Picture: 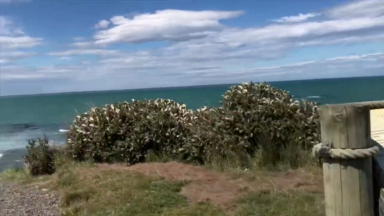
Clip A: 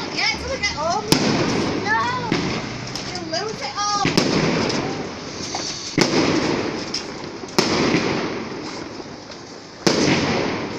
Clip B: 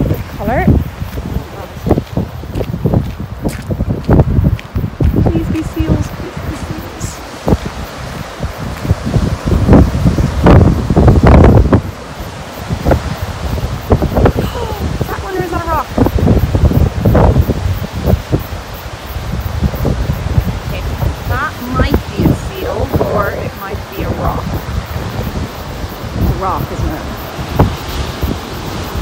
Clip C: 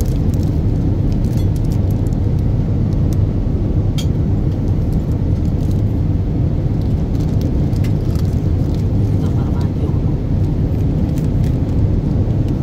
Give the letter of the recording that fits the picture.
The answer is B